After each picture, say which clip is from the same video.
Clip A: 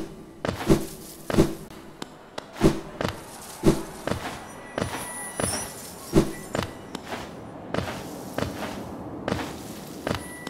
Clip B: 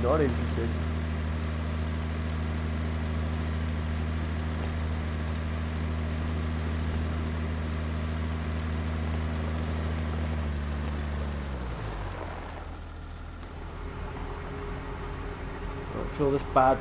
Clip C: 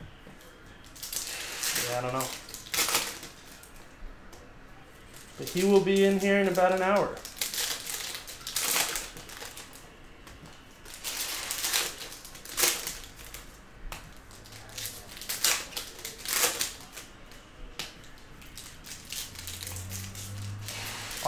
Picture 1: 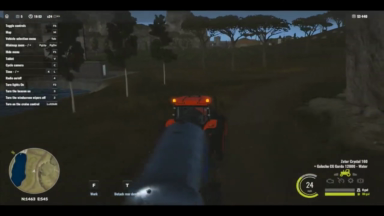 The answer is B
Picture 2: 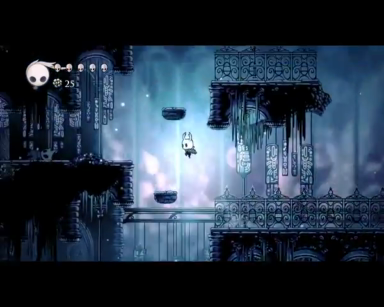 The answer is A